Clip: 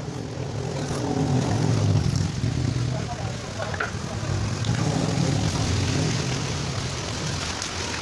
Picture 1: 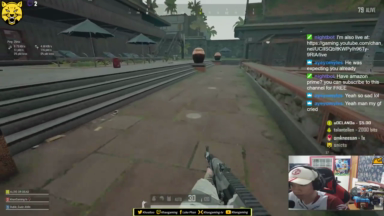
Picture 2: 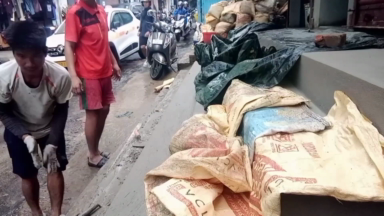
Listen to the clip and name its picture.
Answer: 2